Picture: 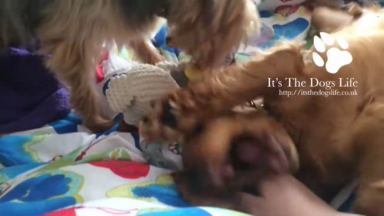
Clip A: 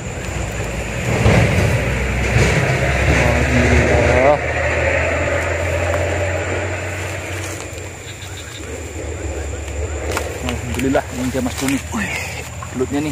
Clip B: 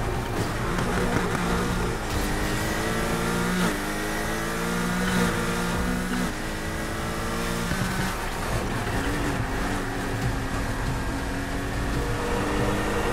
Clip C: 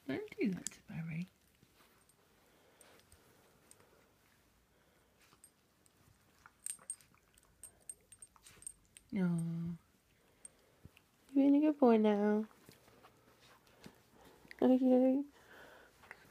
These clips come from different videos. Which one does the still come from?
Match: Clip C